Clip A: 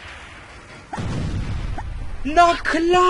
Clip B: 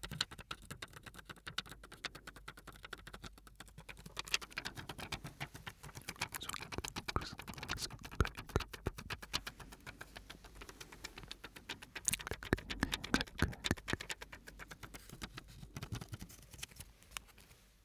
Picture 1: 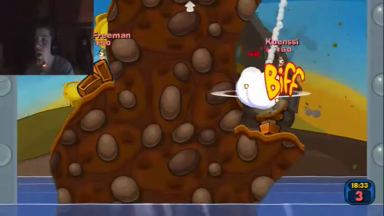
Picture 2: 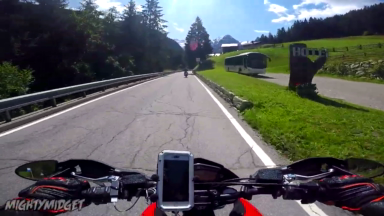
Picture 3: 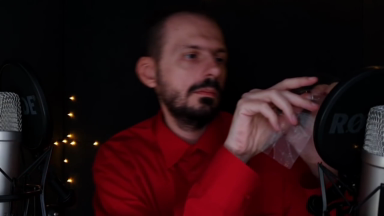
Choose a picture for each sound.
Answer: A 1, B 3